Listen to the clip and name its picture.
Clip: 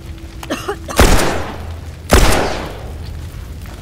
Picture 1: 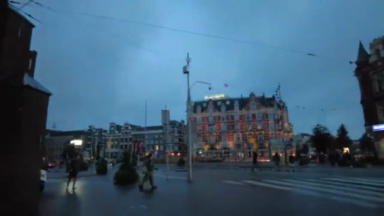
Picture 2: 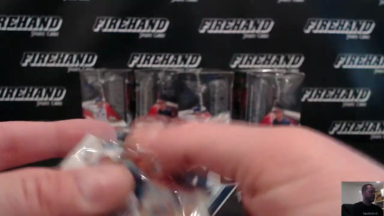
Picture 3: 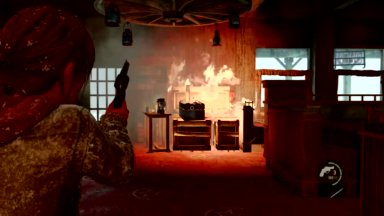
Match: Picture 3